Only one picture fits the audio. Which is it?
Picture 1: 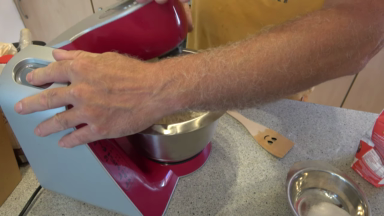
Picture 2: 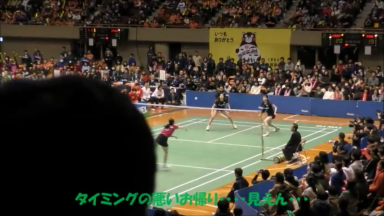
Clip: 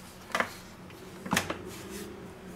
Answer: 1